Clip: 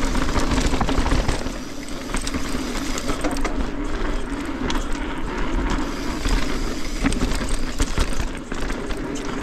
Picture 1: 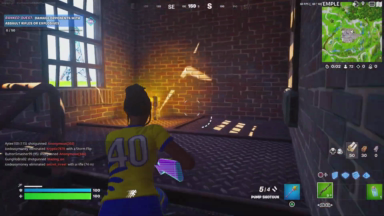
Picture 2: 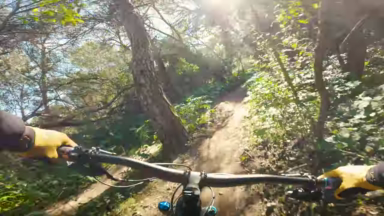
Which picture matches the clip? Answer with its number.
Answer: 2